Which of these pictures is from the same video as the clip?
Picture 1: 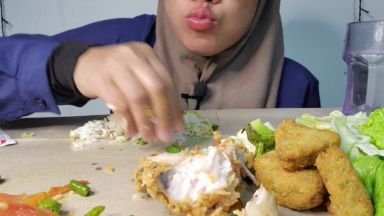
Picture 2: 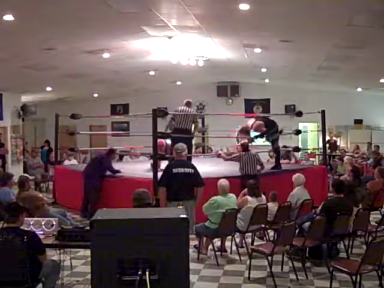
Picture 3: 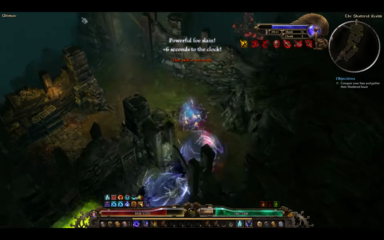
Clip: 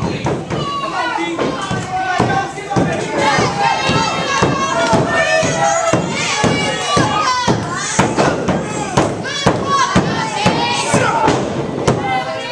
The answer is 2